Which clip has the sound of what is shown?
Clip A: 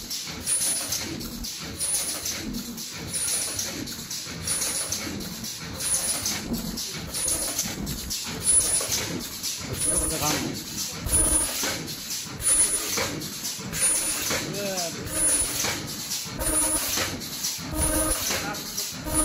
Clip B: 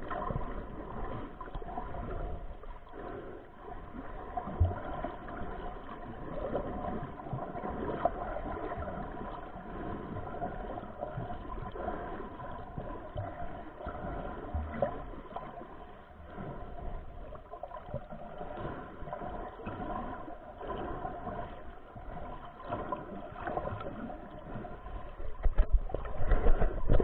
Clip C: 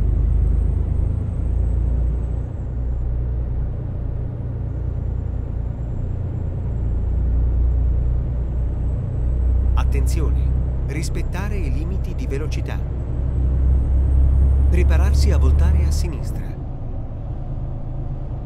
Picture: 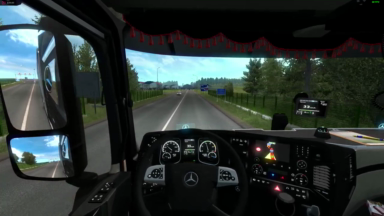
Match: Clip C